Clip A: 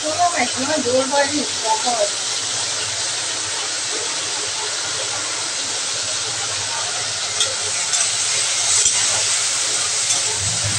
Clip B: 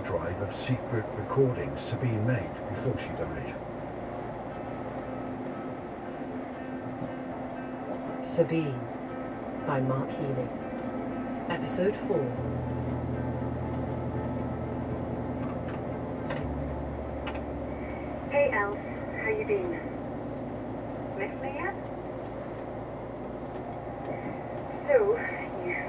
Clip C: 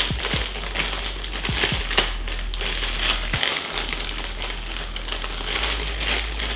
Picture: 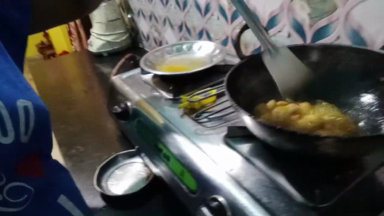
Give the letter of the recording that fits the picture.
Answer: A